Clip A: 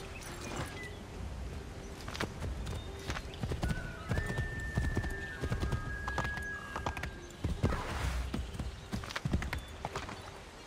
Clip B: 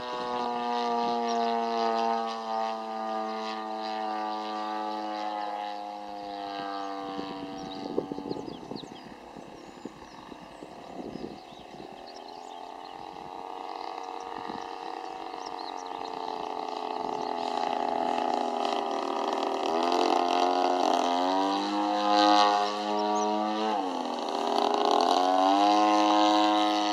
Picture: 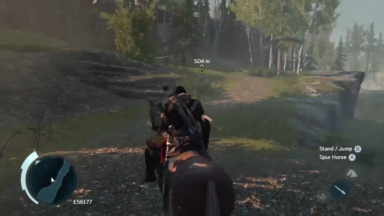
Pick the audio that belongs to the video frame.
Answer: A